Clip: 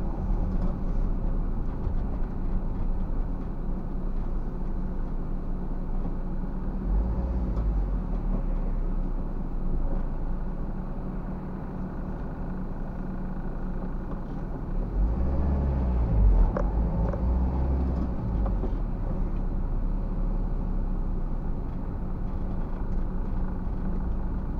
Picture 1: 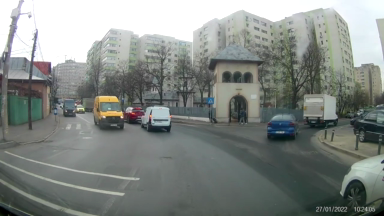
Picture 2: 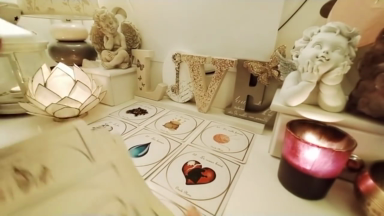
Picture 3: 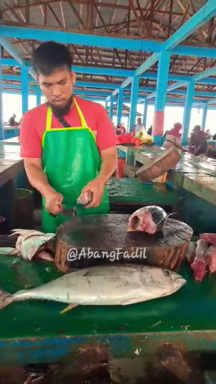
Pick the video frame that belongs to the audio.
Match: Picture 1